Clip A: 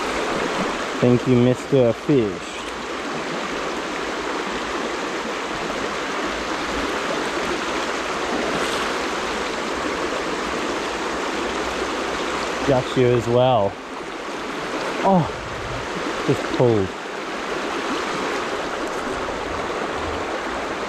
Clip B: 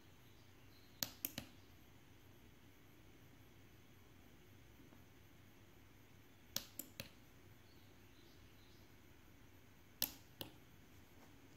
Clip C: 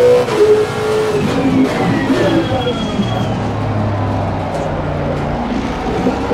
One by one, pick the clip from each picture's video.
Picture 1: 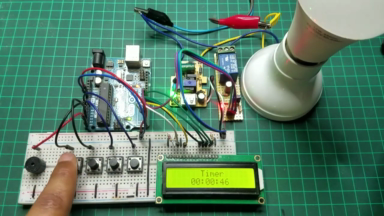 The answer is B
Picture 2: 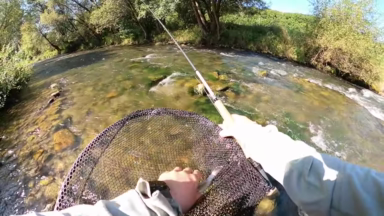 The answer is A